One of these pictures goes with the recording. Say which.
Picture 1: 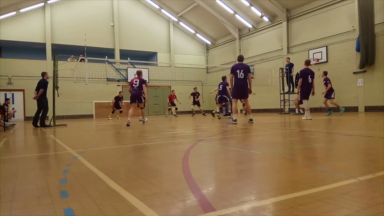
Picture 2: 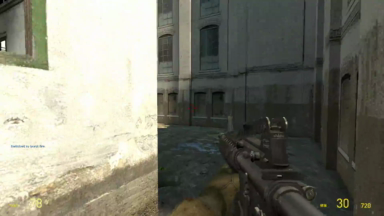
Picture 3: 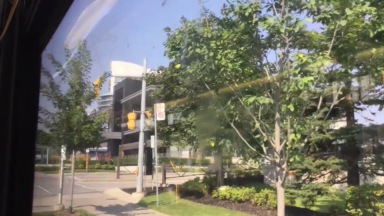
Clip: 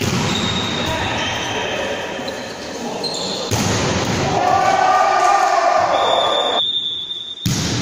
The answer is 1